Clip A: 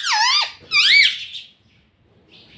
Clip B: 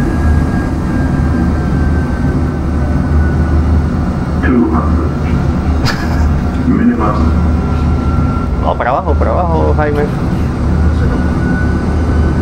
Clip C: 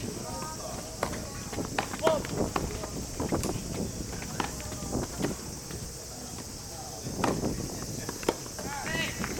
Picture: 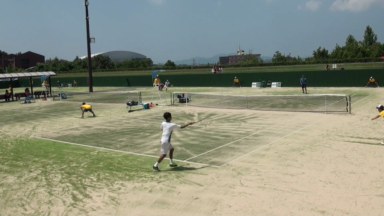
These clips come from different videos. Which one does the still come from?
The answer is C